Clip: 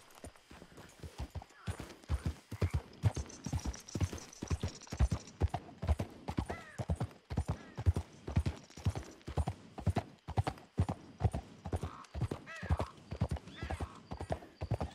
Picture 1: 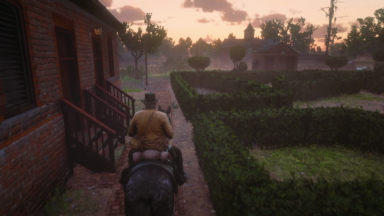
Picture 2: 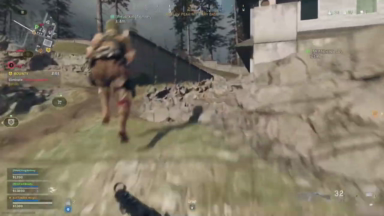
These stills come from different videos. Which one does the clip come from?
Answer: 1